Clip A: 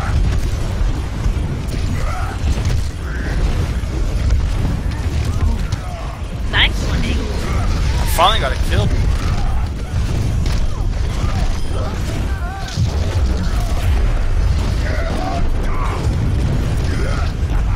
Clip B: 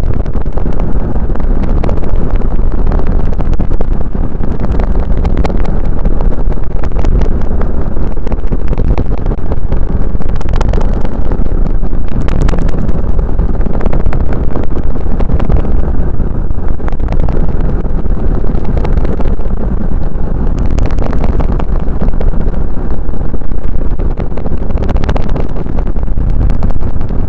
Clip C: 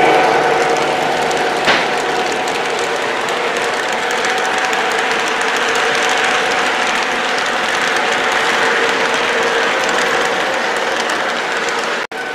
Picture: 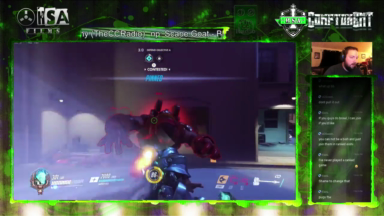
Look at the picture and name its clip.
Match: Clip A